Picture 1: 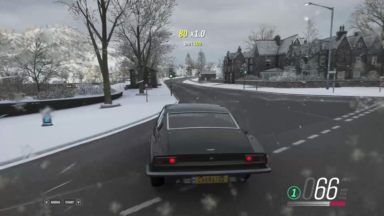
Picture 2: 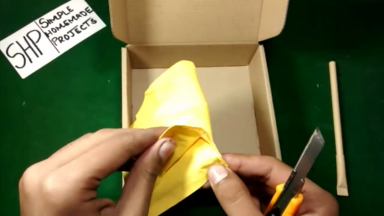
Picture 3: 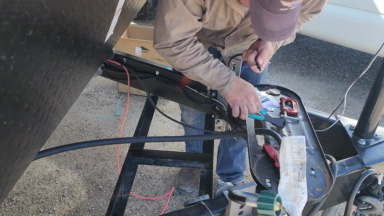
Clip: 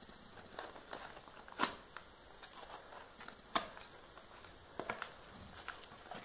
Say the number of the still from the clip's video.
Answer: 2